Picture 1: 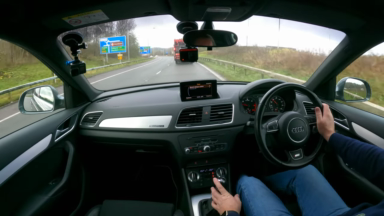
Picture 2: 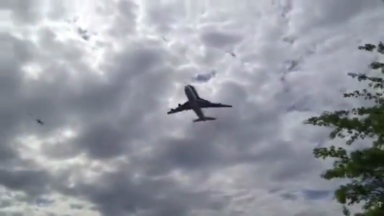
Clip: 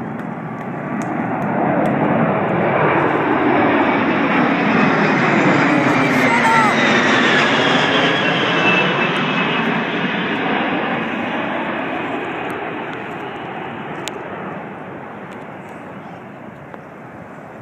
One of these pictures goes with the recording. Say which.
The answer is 2